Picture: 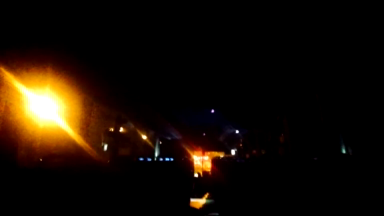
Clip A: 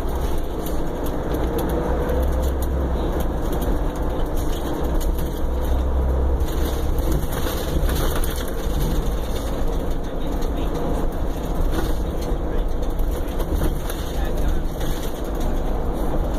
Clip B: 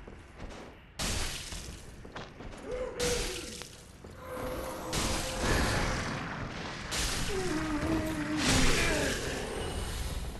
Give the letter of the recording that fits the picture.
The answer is A